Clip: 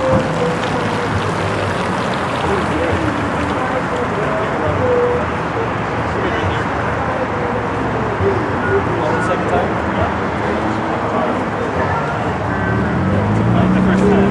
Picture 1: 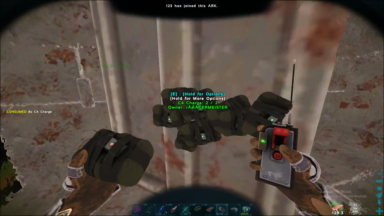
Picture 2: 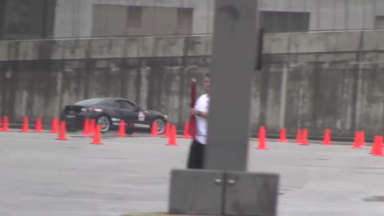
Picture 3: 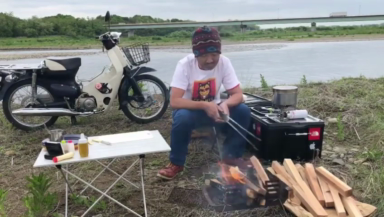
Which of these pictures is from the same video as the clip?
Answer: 2